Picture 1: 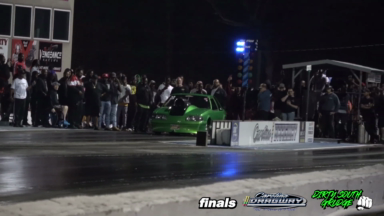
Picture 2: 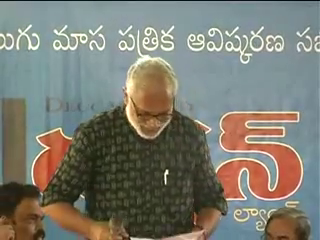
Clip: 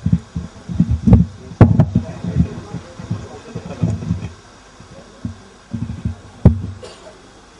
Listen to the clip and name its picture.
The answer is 2